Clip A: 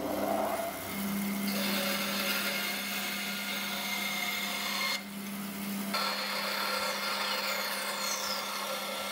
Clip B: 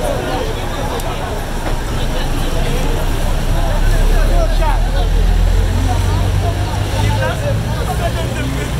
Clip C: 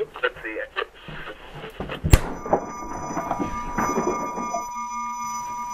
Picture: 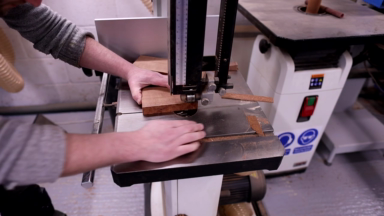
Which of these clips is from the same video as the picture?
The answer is A